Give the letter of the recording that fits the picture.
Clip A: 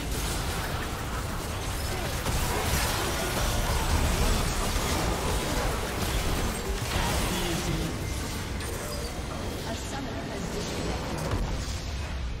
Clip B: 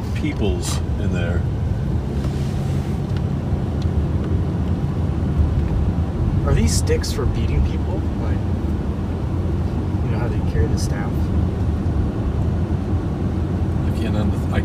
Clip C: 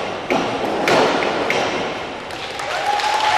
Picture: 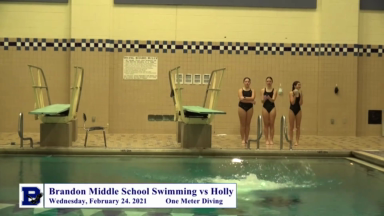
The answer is C